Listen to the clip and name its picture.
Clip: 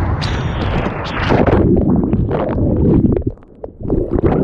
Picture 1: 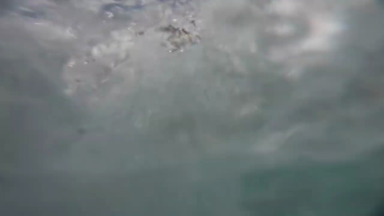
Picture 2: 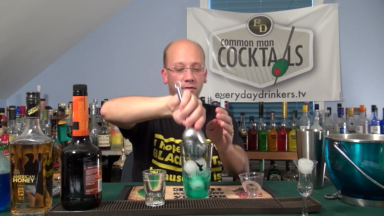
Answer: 1